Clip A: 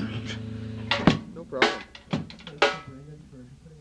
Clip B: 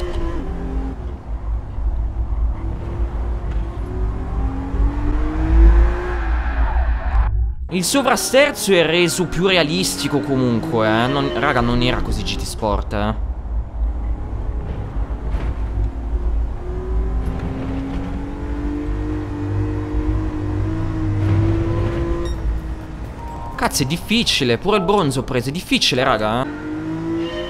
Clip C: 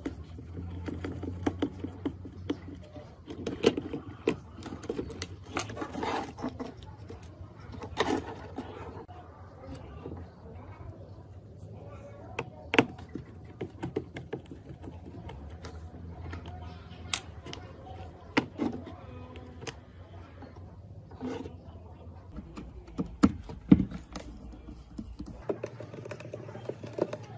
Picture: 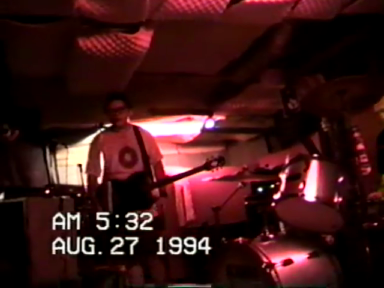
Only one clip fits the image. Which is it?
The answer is A